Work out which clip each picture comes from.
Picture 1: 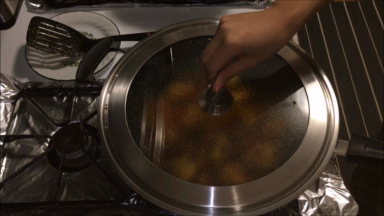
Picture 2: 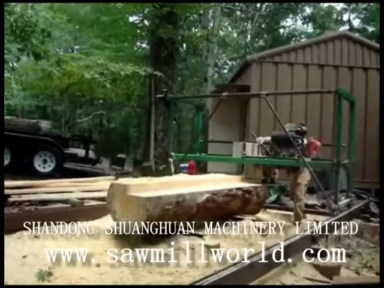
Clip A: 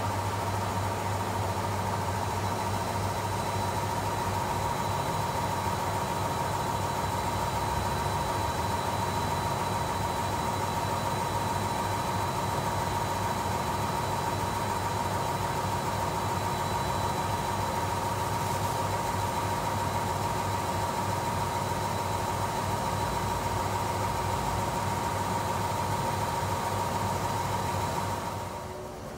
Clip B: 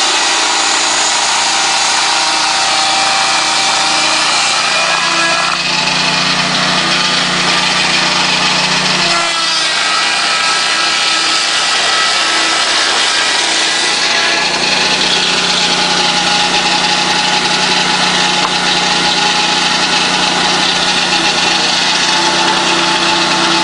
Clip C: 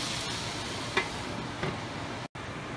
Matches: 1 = C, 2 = B